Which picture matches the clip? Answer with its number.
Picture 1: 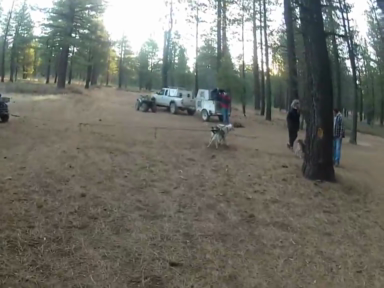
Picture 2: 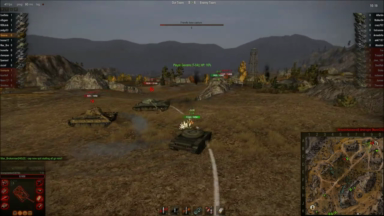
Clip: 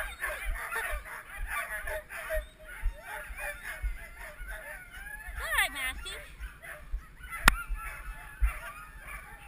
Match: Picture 1